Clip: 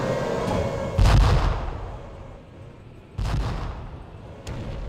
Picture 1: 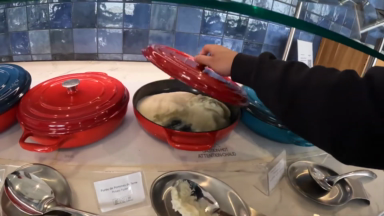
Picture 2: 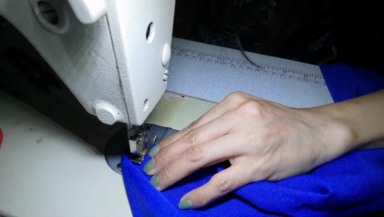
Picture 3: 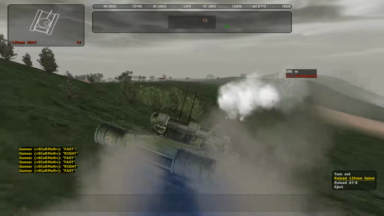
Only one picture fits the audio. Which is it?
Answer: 3